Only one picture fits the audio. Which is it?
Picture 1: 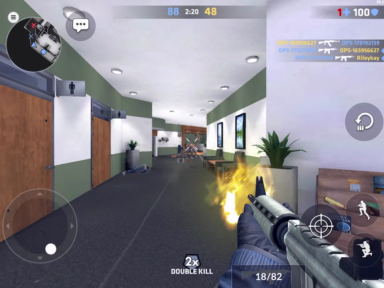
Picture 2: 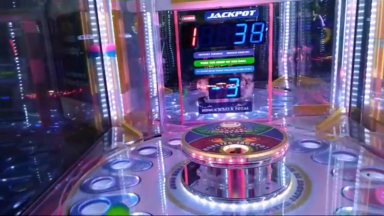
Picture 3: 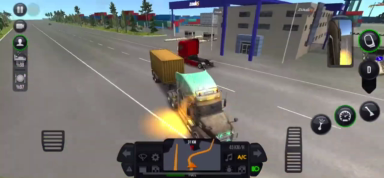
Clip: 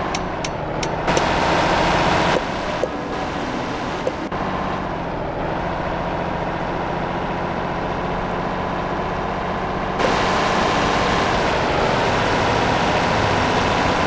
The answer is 3